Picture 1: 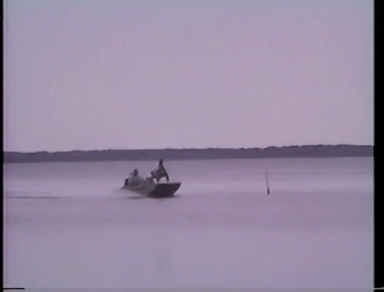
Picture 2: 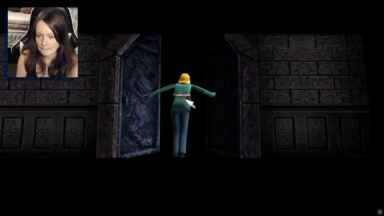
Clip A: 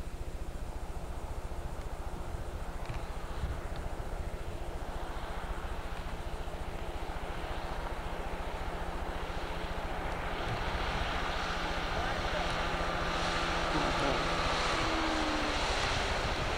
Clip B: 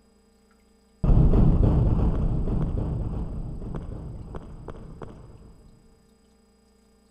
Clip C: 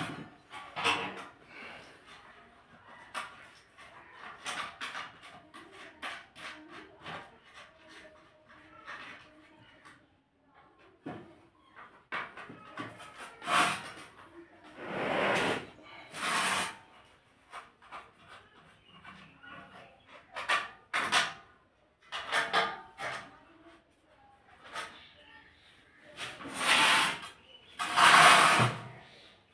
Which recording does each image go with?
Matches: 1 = A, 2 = B